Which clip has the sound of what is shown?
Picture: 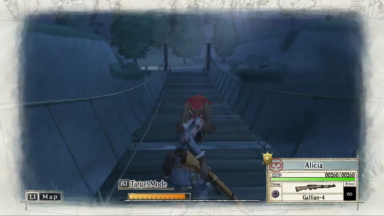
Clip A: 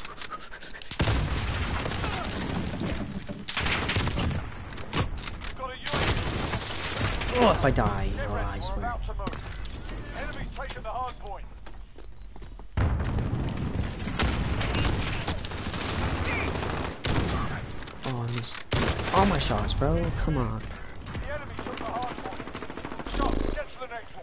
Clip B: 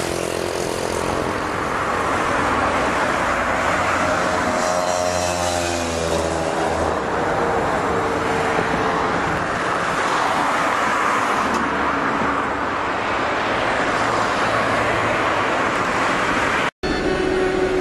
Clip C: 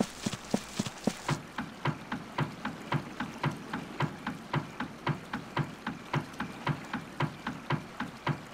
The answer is C